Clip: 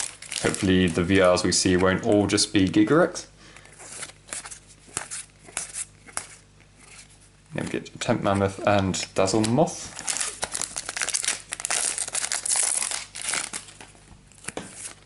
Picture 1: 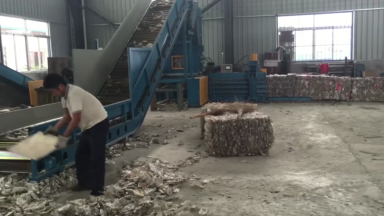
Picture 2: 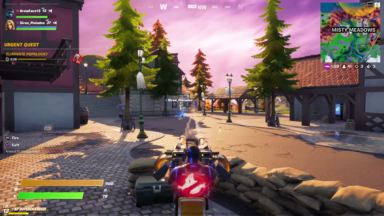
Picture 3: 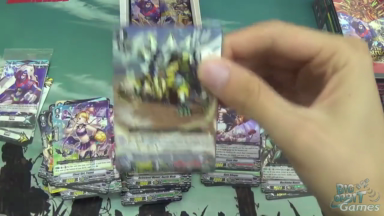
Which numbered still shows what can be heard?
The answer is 3